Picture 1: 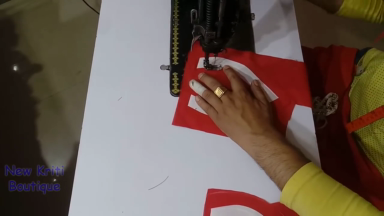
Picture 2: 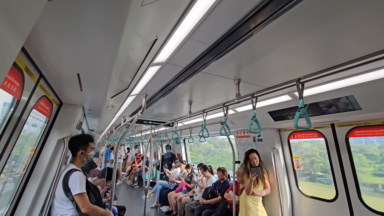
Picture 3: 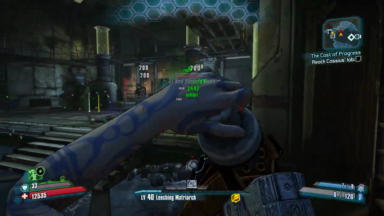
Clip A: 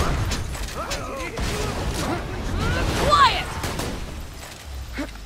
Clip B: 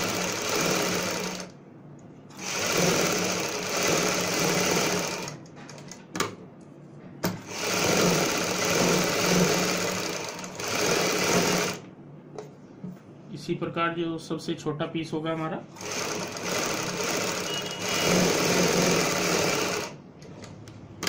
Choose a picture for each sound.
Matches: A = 3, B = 1